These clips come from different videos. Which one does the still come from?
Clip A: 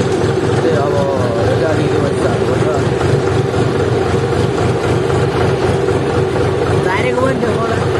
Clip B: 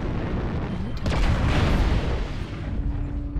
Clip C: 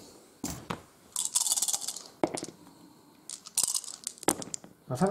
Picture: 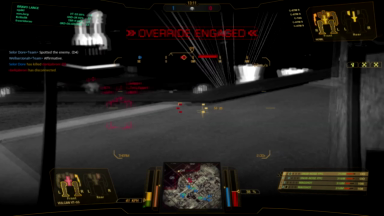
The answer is B